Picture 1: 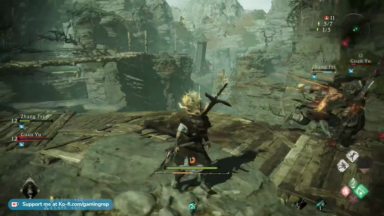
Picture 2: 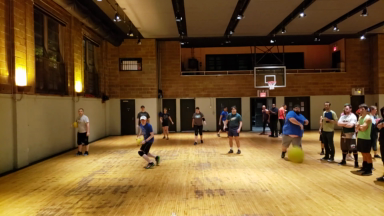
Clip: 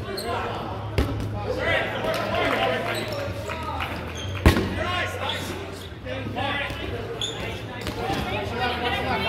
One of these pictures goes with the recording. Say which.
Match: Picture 2